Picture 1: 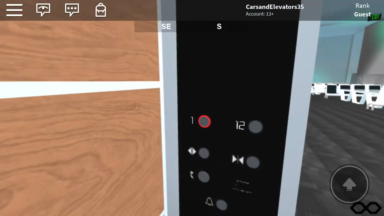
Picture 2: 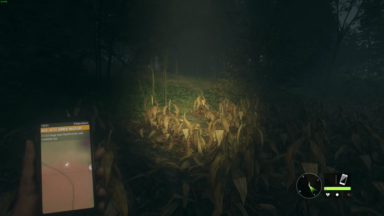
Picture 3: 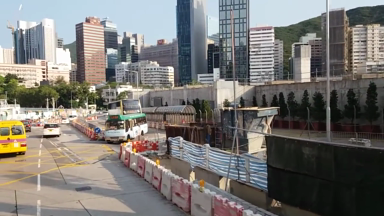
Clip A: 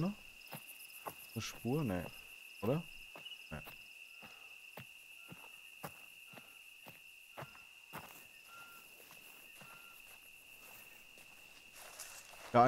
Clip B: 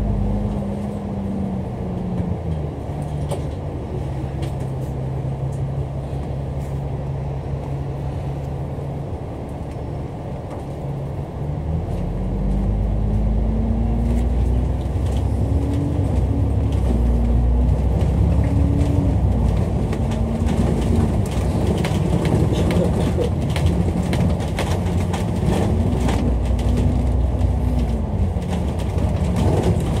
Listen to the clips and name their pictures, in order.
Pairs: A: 2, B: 3